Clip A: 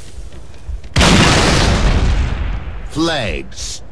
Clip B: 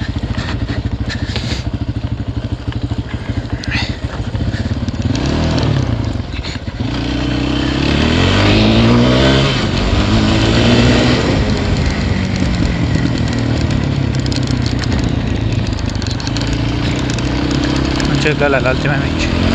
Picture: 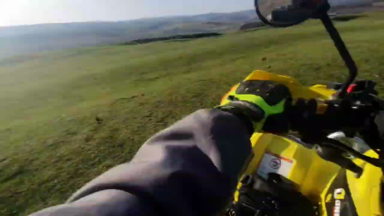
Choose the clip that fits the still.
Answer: B